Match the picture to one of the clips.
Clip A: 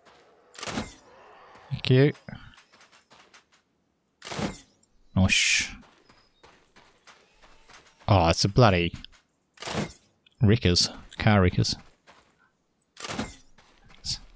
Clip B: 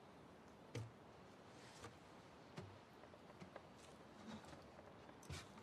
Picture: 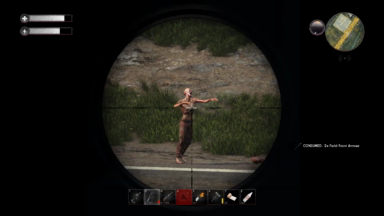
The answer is A